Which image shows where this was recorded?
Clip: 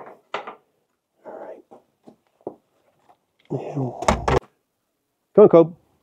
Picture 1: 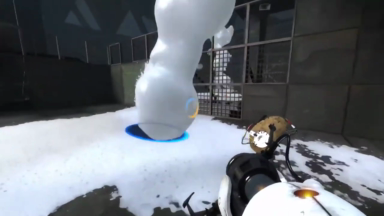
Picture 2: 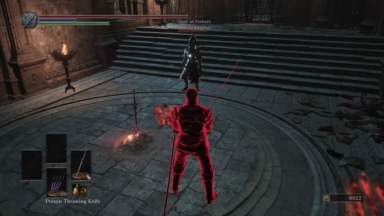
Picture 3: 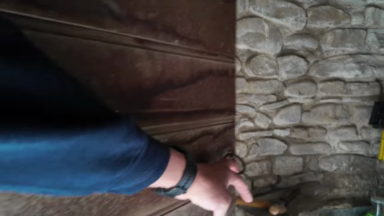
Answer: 3